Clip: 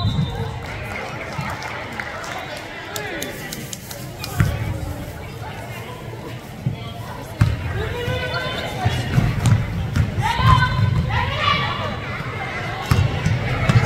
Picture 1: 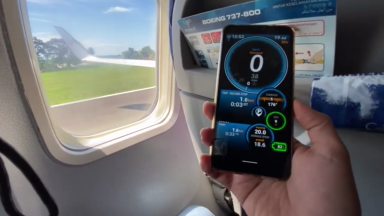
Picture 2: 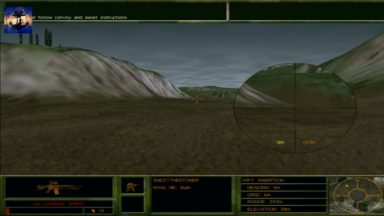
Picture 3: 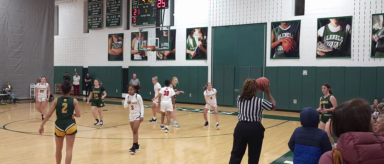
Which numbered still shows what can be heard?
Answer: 3